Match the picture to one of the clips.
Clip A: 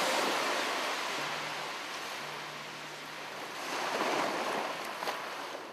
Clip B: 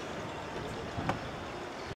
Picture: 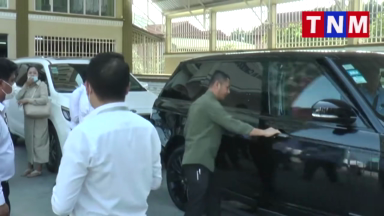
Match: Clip B